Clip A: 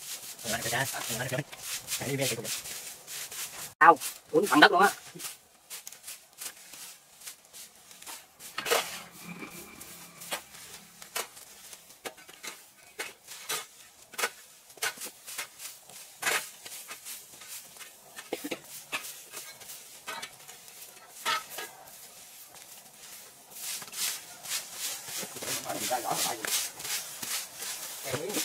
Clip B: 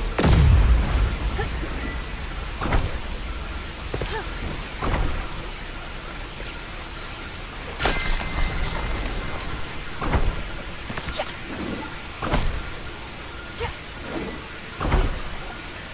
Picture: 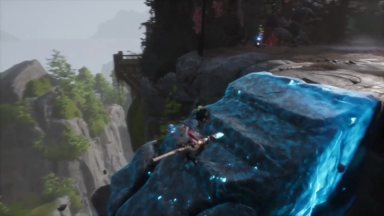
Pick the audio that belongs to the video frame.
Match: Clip B